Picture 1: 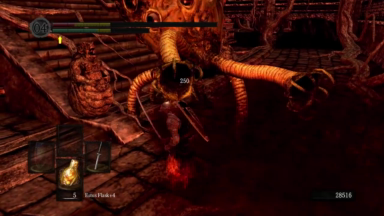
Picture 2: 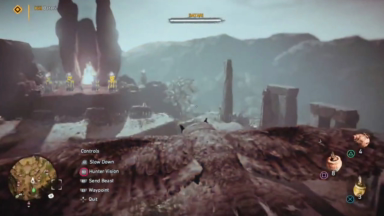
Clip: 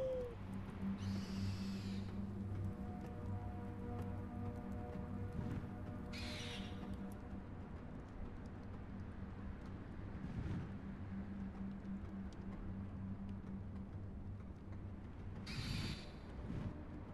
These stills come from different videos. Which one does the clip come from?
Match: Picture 2